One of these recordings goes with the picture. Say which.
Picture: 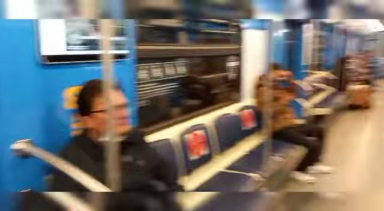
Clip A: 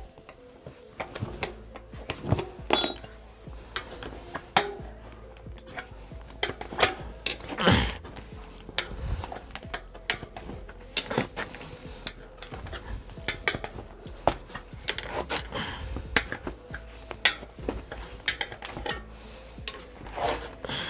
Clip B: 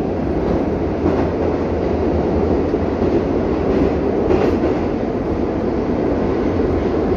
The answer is B